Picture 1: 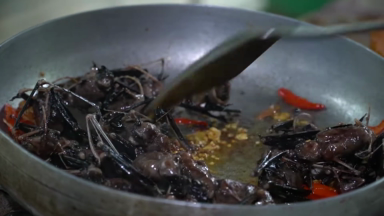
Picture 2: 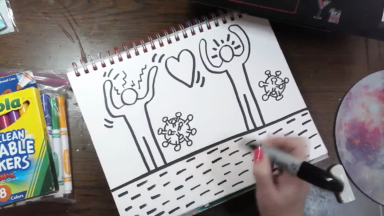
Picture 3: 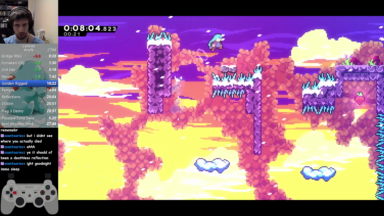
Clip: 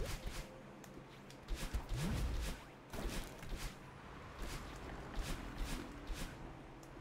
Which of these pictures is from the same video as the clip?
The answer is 3